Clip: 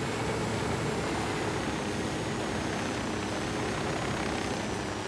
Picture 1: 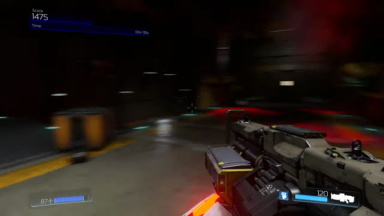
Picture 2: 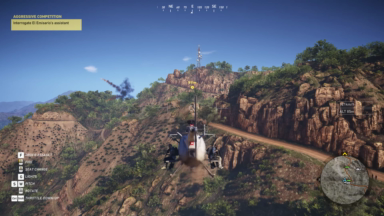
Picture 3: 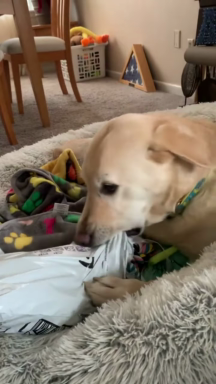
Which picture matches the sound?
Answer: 2